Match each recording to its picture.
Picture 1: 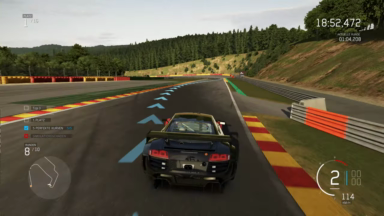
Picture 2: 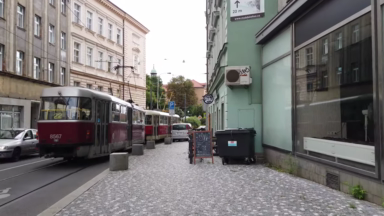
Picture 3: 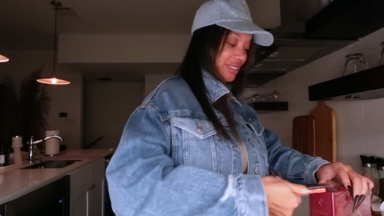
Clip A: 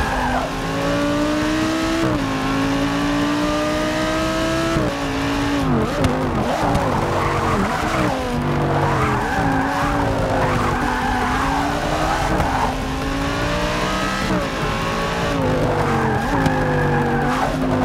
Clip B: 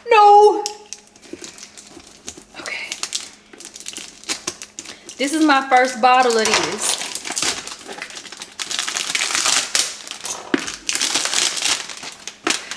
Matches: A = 1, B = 3